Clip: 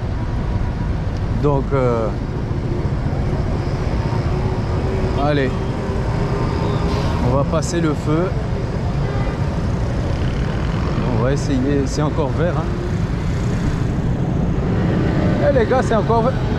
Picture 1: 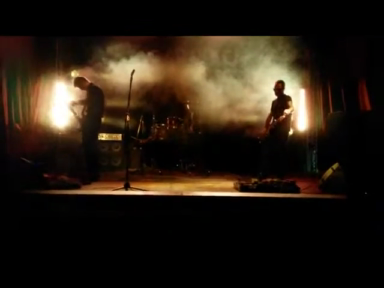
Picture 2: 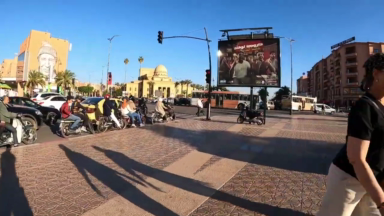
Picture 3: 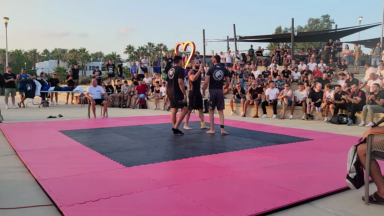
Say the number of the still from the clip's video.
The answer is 2